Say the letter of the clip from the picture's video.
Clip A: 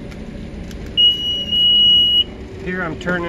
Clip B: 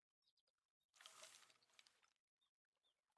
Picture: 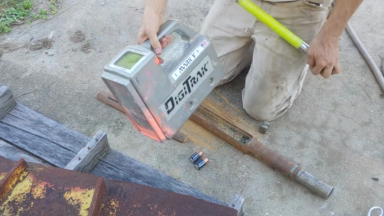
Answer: A